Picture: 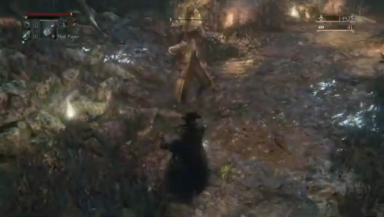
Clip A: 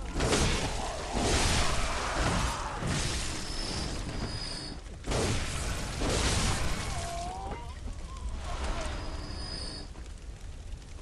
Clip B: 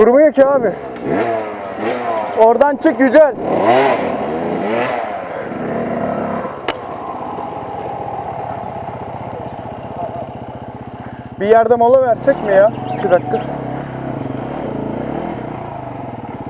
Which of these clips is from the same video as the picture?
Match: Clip A